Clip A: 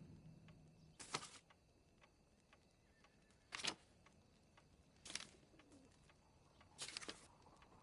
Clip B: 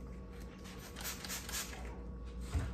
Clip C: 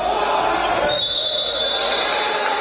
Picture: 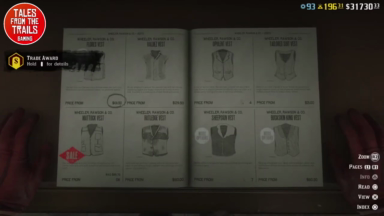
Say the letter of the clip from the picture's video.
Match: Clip A